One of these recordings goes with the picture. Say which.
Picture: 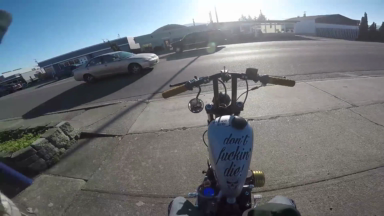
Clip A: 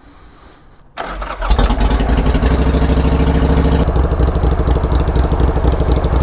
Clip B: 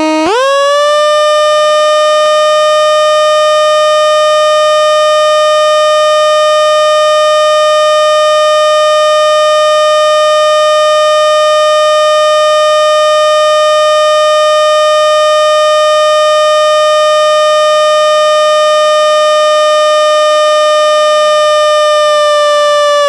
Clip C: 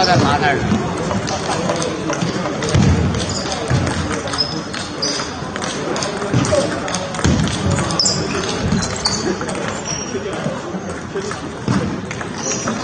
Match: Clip A